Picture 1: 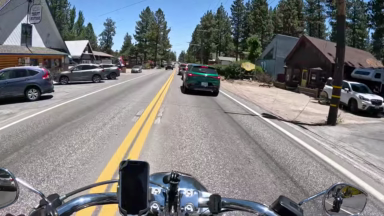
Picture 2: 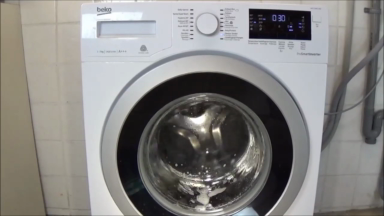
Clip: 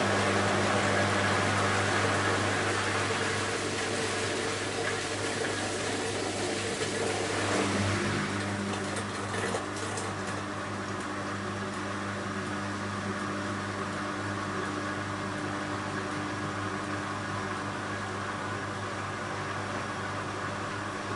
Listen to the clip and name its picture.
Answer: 2